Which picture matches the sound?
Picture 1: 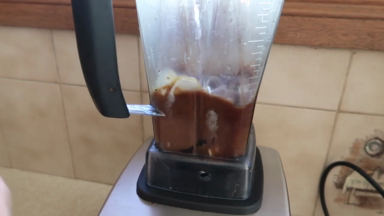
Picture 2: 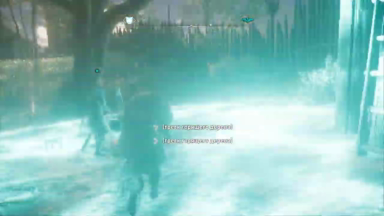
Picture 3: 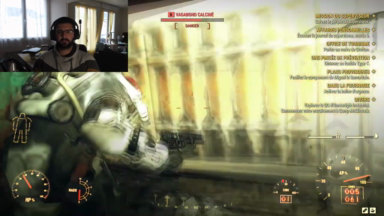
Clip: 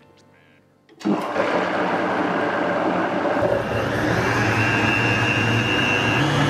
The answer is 1